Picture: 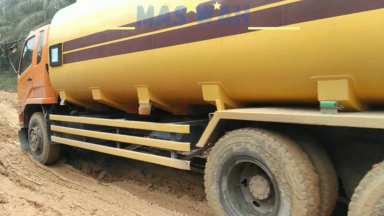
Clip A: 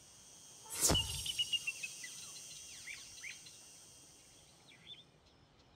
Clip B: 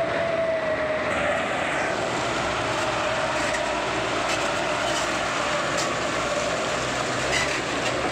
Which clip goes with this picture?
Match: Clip B